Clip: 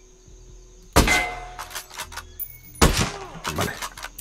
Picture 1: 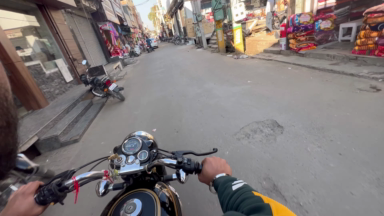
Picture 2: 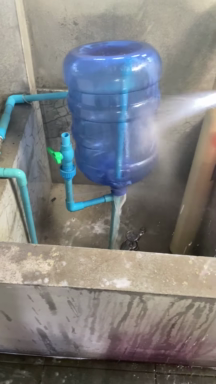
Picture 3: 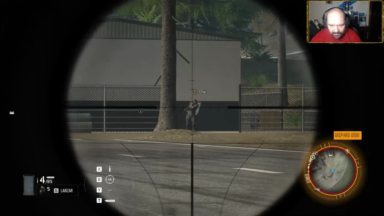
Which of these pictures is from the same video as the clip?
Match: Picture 3